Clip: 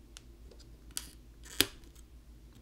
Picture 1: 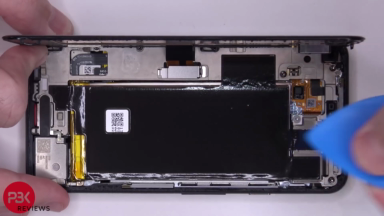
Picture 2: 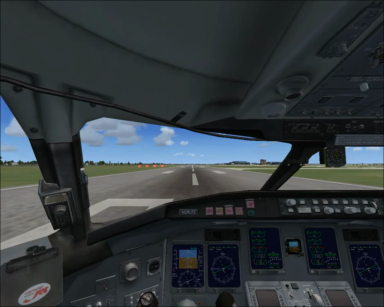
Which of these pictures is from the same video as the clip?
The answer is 1